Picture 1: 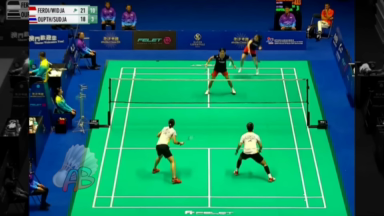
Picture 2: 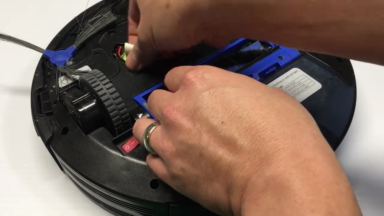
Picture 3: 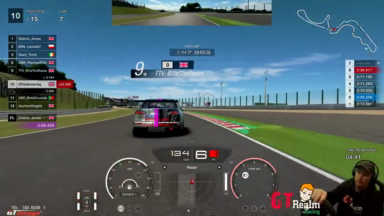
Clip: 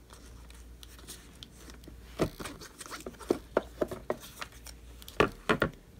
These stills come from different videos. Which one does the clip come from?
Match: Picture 2